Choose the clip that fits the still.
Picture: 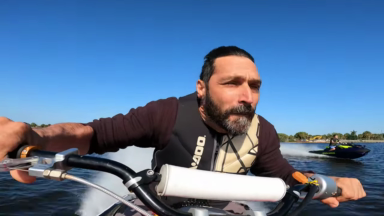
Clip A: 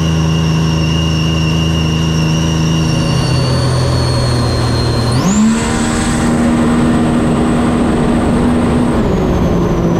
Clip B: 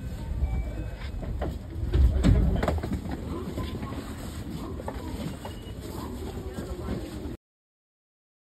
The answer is A